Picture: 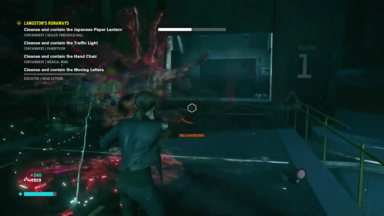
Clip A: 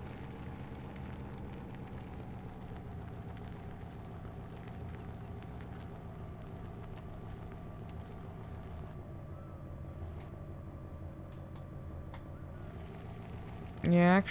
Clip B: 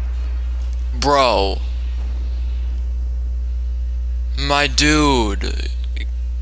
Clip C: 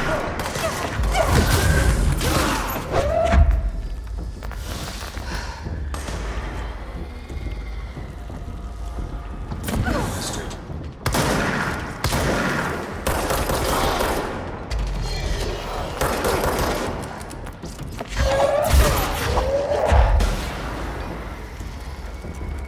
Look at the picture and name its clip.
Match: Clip C